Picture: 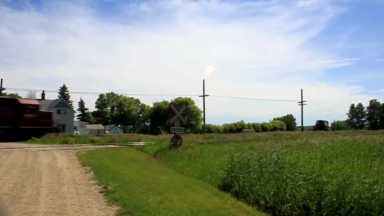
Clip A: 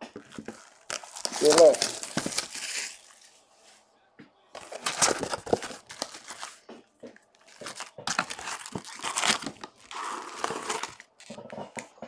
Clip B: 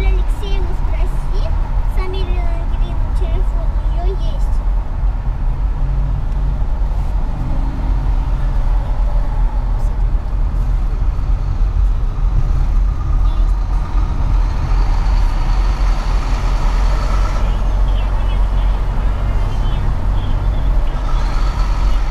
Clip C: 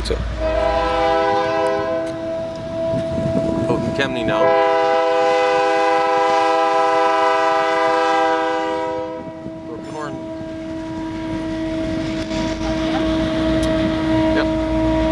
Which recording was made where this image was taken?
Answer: C